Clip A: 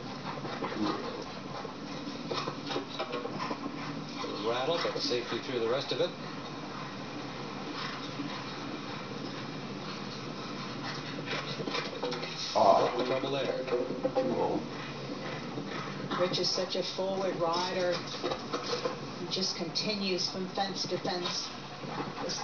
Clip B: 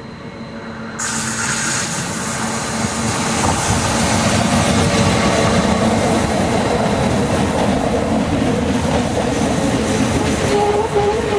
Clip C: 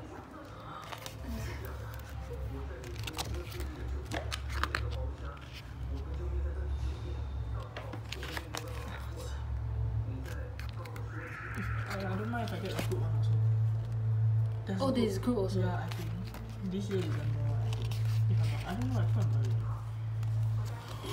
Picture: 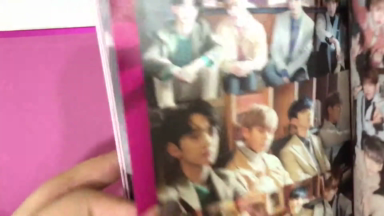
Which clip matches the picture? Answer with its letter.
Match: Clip C